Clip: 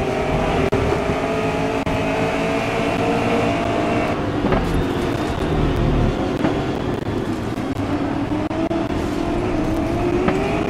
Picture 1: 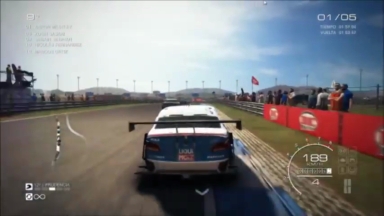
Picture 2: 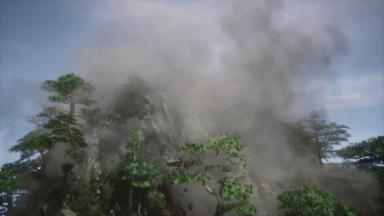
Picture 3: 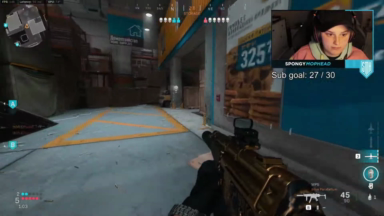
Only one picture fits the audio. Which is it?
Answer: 1